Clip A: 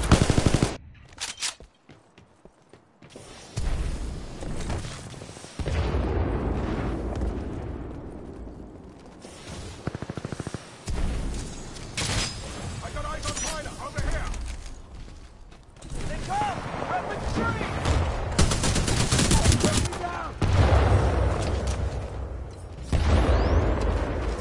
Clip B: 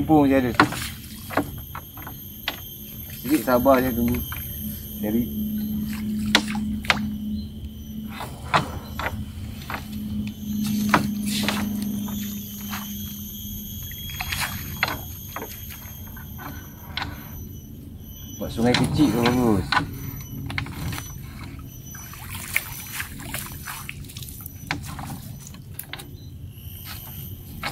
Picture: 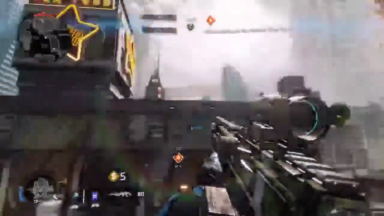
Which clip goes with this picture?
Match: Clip A